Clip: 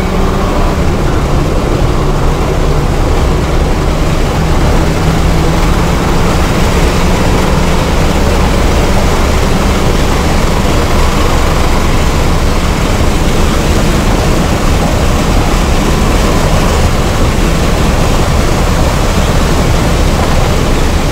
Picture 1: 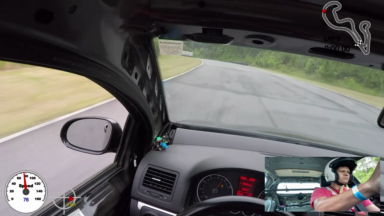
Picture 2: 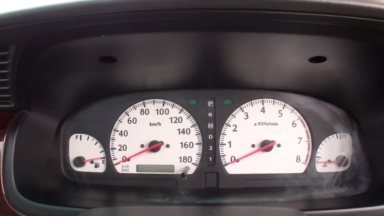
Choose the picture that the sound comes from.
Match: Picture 1